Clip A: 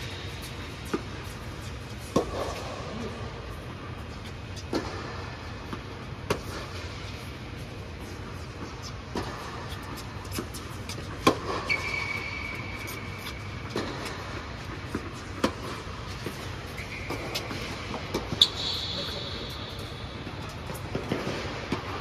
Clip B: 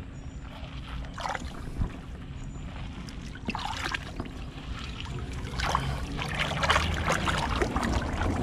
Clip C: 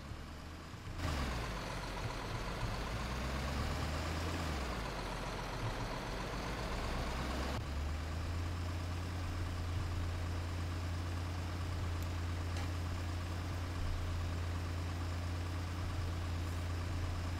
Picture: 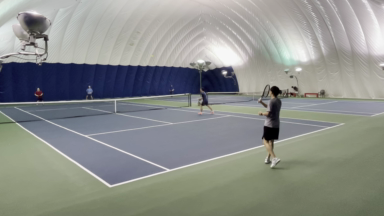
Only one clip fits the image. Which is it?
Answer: A